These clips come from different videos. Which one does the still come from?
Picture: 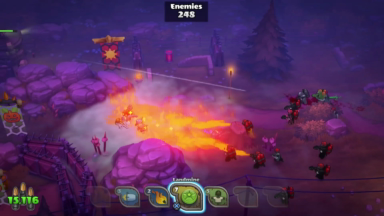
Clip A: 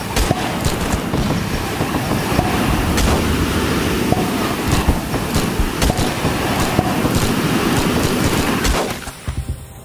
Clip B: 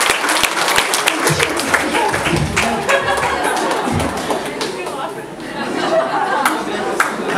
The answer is A